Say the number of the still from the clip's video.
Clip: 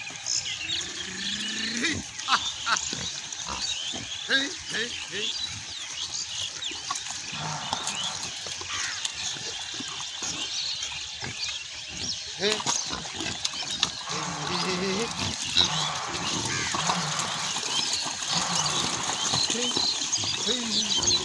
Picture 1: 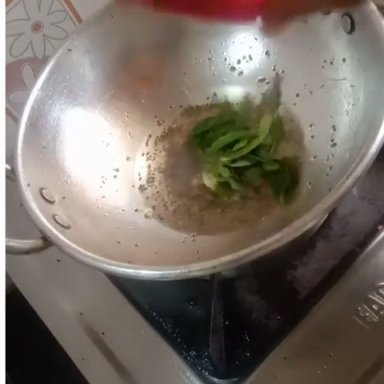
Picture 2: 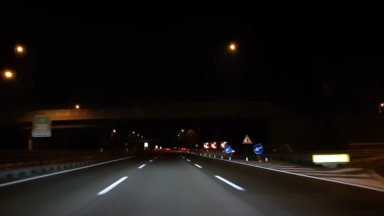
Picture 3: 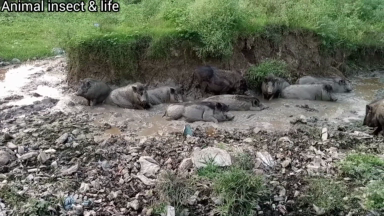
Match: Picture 3